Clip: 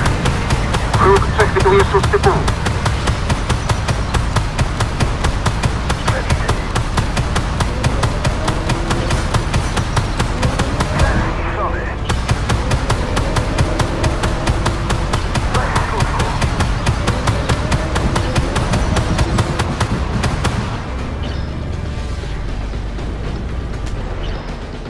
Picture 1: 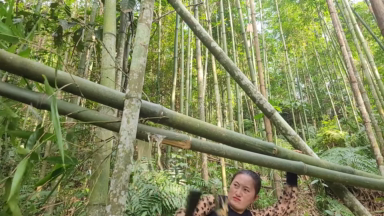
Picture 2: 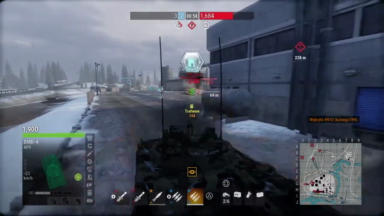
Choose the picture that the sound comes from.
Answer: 2